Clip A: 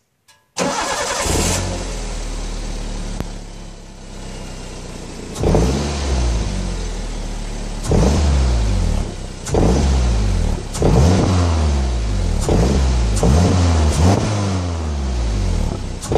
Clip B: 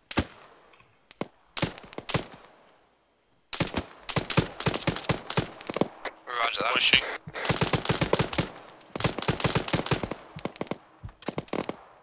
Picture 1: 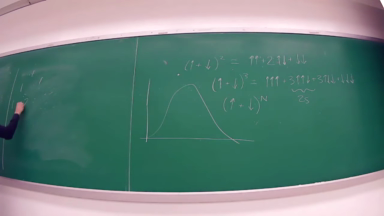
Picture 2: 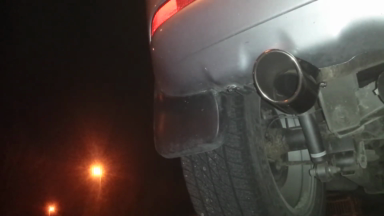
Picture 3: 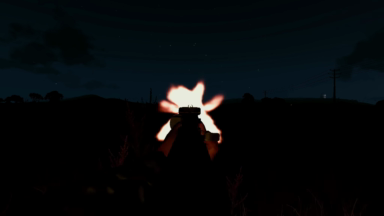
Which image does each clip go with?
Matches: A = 2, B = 3